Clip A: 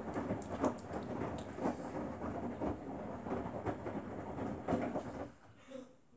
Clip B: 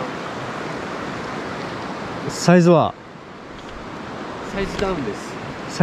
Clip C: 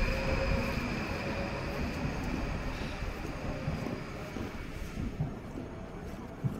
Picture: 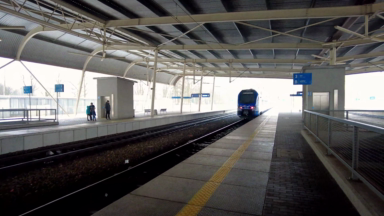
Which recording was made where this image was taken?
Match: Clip C